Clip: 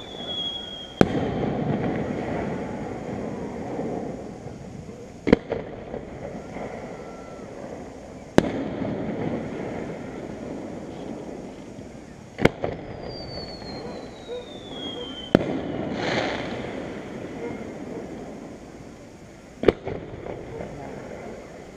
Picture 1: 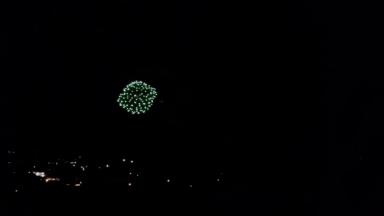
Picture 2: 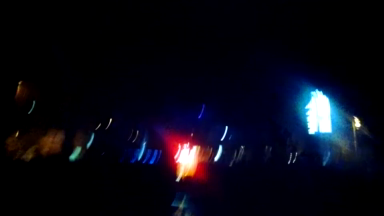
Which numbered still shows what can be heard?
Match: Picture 1